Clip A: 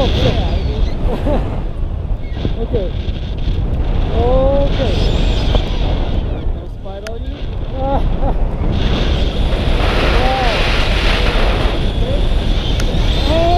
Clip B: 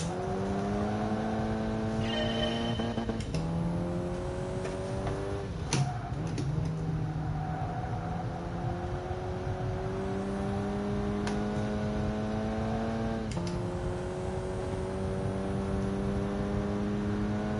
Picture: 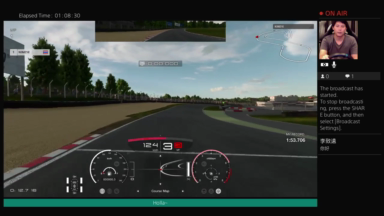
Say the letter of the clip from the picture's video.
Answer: B